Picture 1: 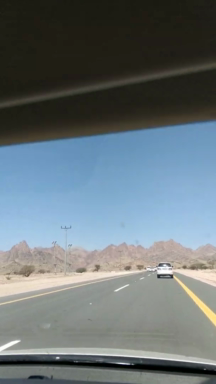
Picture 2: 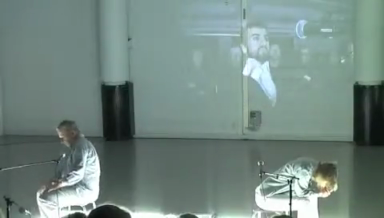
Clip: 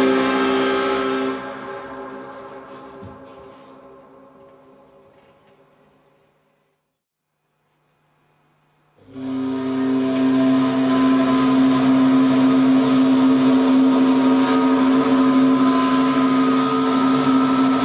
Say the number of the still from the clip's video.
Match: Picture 2